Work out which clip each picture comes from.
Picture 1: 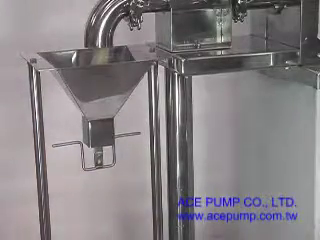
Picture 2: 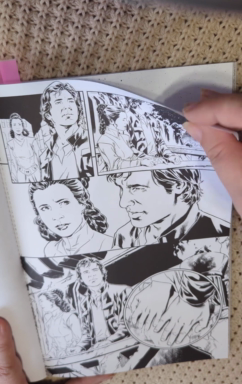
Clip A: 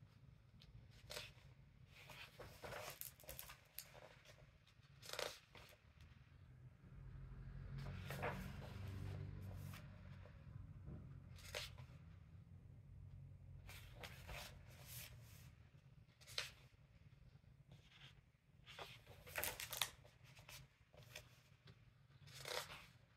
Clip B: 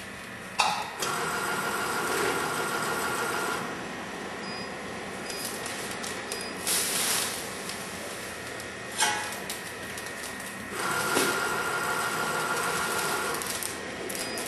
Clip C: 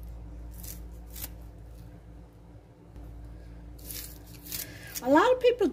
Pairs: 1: B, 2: A